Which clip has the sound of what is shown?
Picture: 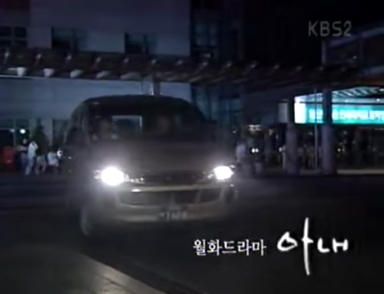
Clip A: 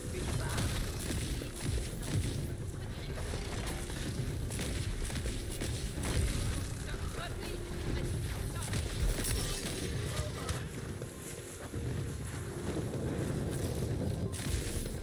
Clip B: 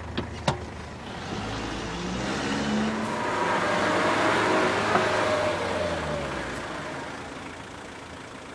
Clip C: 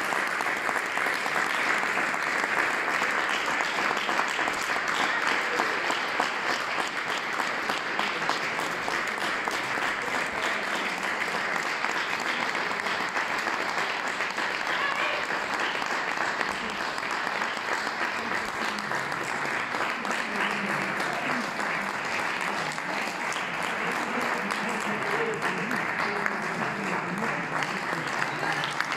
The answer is B